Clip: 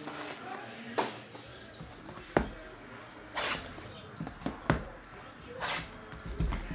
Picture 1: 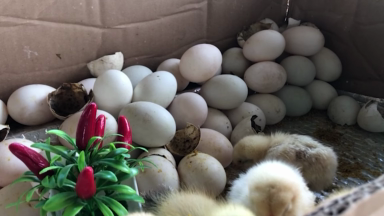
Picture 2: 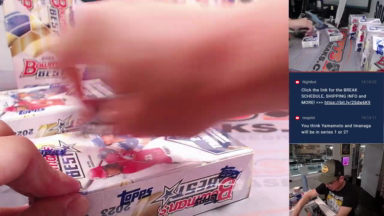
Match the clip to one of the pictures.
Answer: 2